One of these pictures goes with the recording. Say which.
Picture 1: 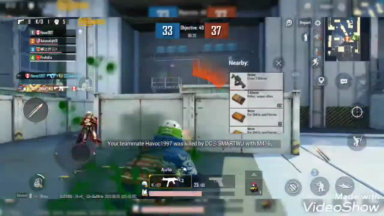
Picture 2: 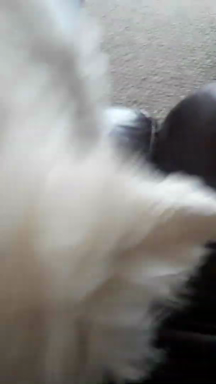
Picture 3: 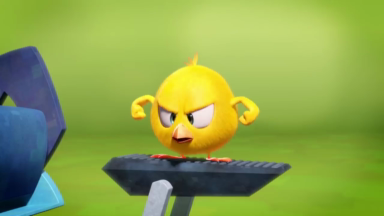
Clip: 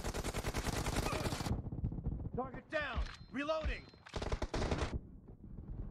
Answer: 1